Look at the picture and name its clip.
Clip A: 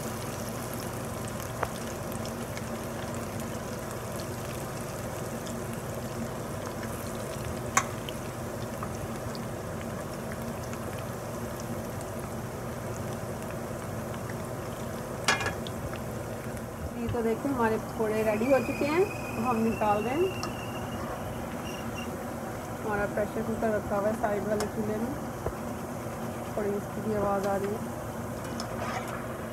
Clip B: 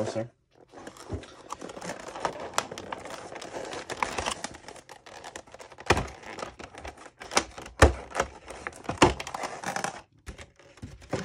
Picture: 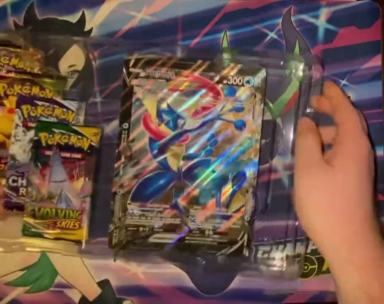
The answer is B